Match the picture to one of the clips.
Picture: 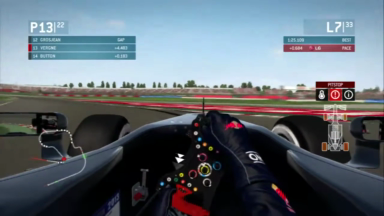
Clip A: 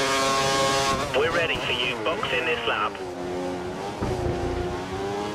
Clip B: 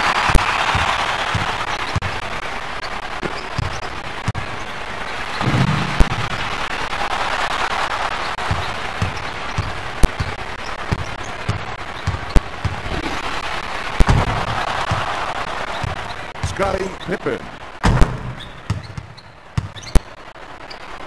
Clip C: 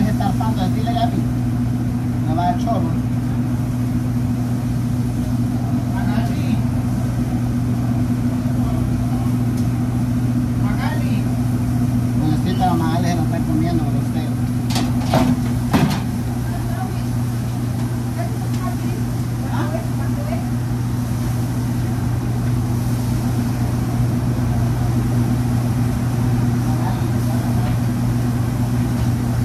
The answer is A